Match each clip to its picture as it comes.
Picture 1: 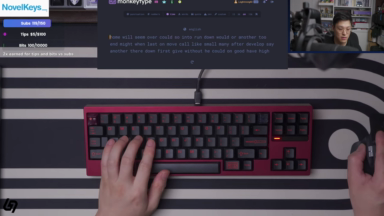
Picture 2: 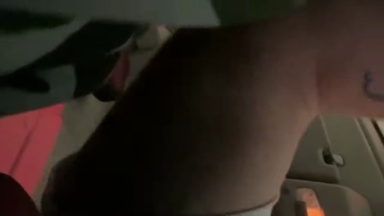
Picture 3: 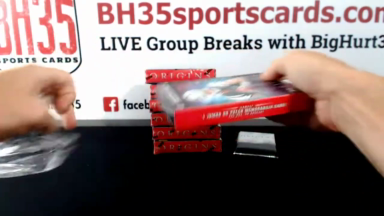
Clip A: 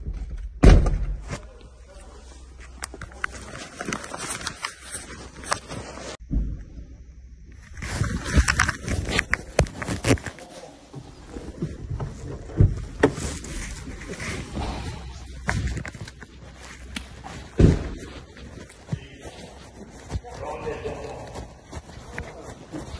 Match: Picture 2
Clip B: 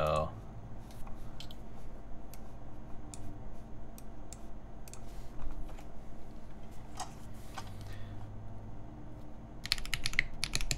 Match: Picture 1